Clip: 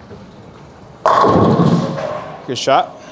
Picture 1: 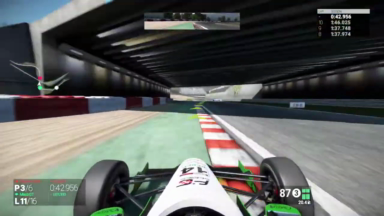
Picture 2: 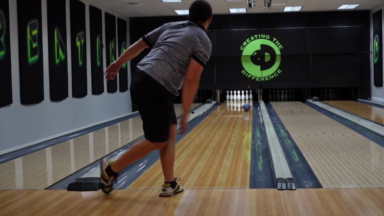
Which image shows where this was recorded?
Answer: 2